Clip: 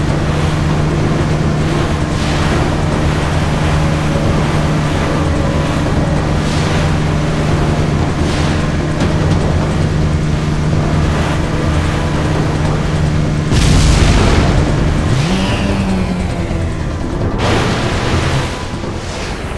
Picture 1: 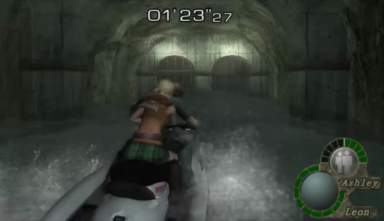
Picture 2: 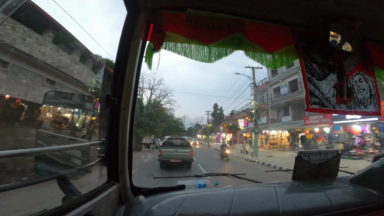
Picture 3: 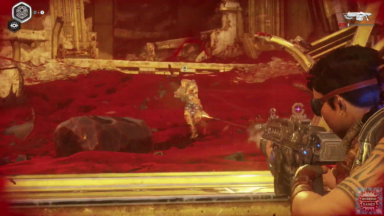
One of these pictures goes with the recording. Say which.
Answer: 1